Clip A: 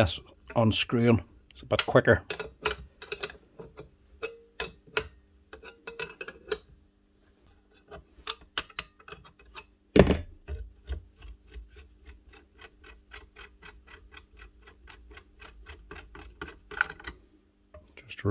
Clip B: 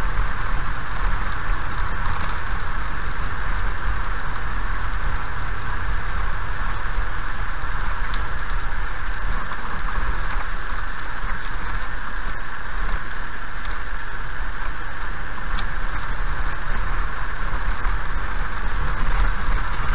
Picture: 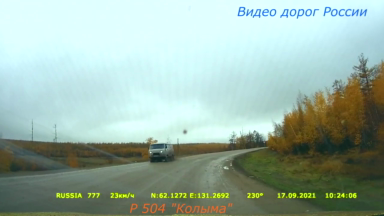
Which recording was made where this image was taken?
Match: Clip B